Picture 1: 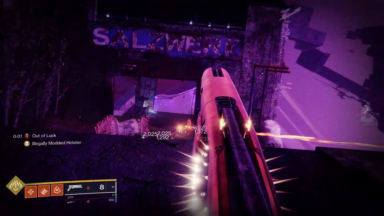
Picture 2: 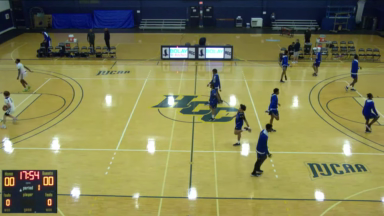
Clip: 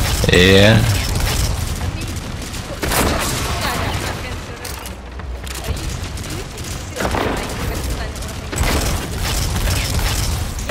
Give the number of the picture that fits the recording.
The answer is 1